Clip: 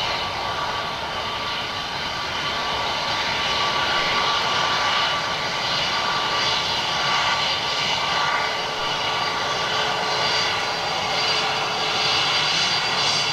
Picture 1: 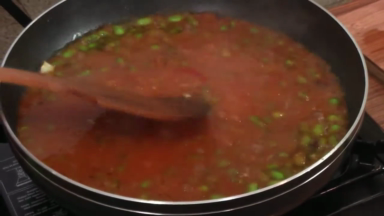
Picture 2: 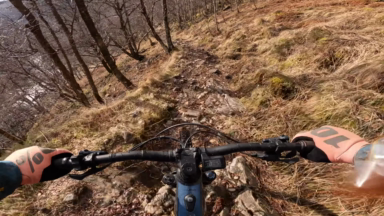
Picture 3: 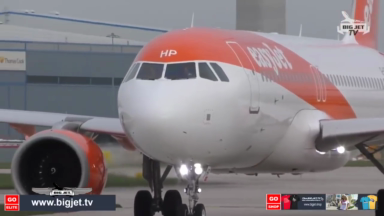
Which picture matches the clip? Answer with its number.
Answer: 3